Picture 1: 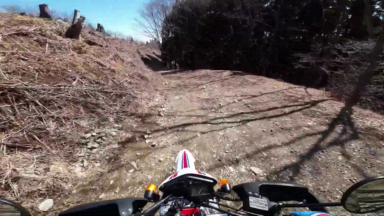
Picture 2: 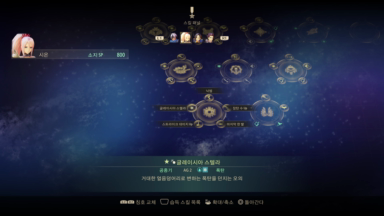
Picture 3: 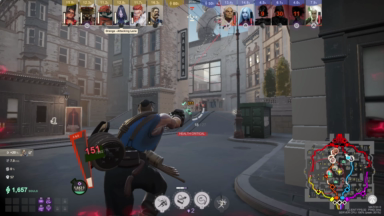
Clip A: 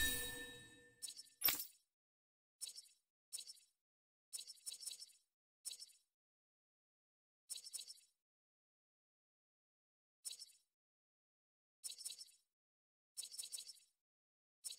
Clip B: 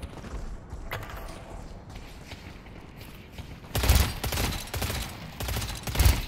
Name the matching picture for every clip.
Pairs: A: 2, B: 3